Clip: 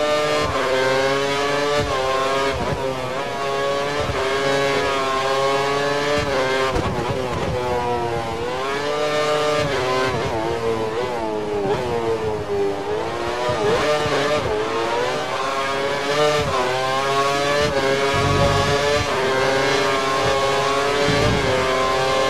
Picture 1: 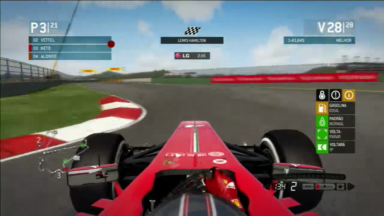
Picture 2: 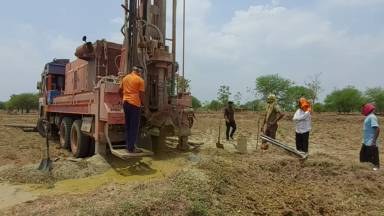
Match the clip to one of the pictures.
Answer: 1